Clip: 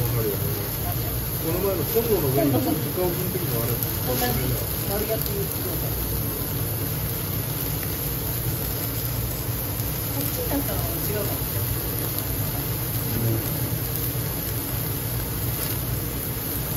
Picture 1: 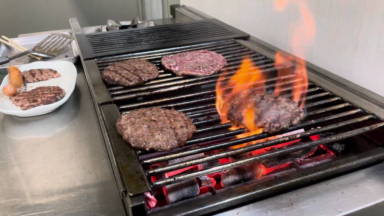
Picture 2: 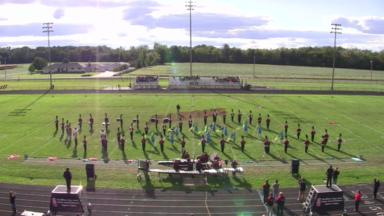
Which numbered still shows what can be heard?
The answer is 1